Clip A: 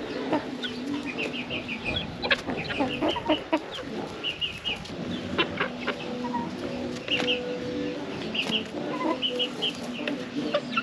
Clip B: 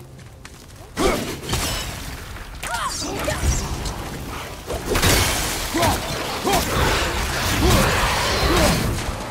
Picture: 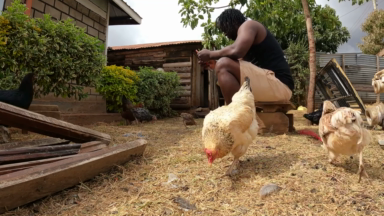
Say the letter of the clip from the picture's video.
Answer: A